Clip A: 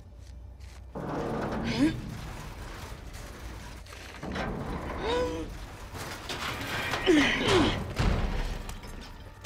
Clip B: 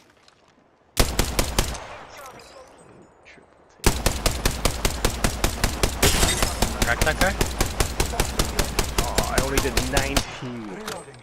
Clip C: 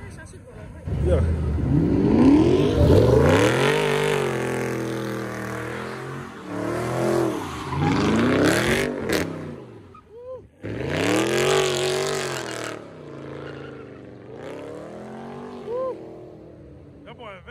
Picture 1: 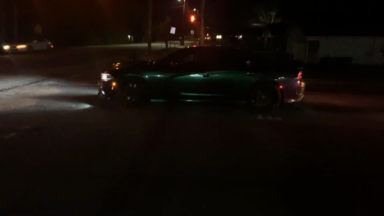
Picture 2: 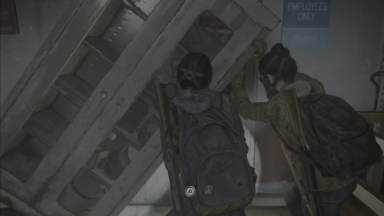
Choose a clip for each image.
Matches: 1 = C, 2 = A